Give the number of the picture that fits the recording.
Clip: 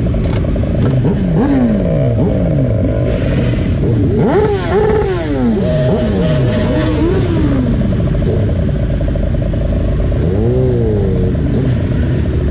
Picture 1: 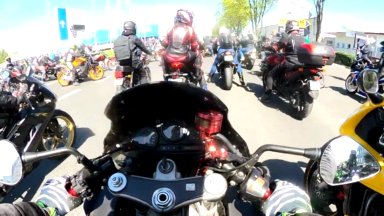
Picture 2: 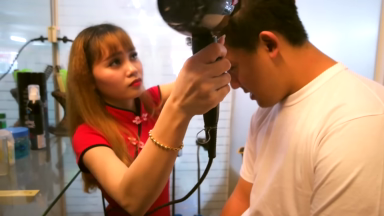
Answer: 1